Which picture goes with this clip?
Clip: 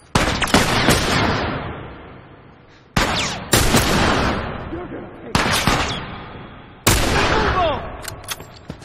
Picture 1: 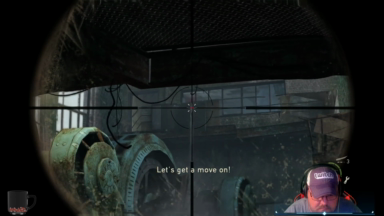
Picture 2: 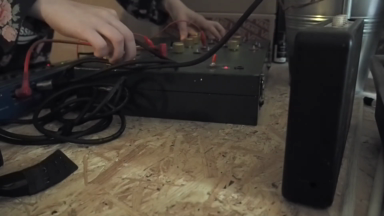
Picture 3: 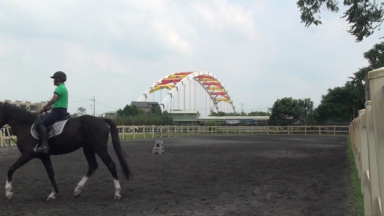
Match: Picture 1